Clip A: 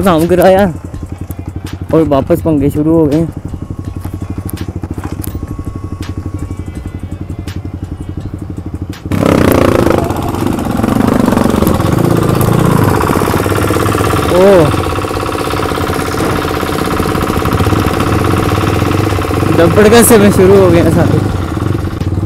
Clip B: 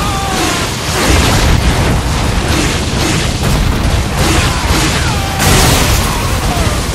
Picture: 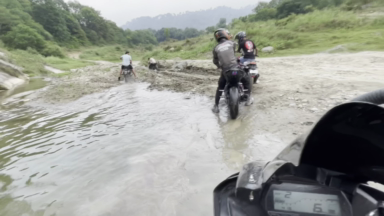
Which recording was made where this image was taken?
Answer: A